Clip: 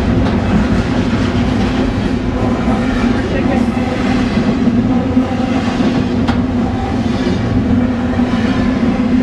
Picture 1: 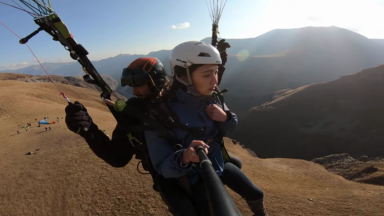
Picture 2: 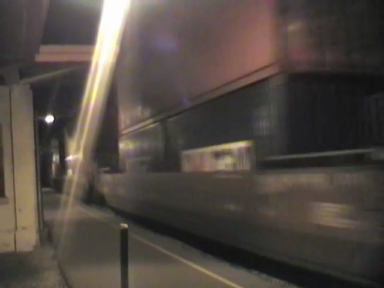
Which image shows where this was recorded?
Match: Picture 2